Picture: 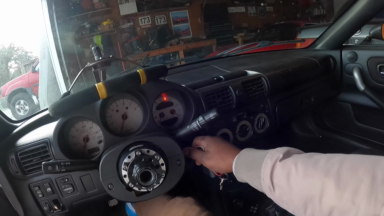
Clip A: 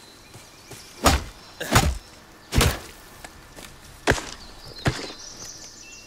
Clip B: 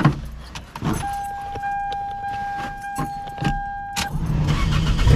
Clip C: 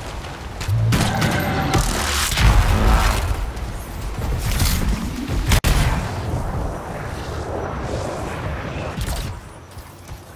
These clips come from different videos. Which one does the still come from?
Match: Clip B